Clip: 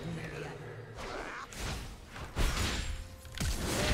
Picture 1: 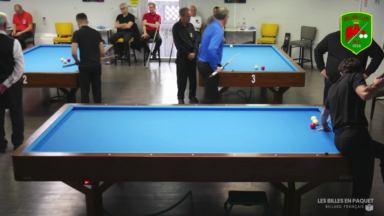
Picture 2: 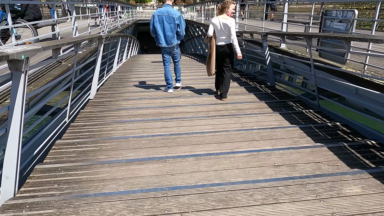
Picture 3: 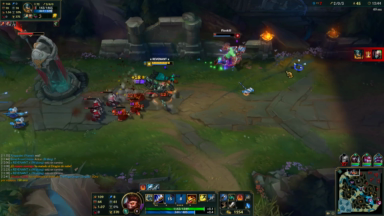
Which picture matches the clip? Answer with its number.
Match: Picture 3